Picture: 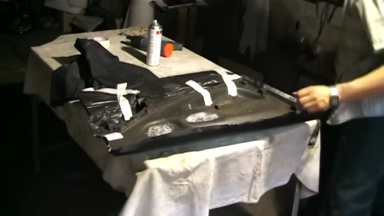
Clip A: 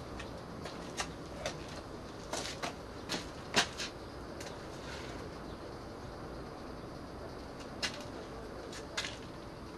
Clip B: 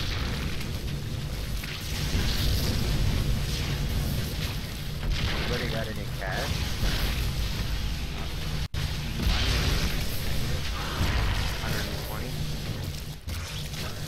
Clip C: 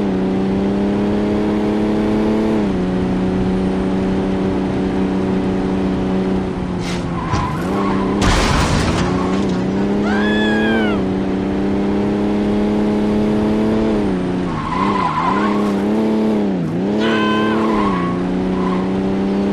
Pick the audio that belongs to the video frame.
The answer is A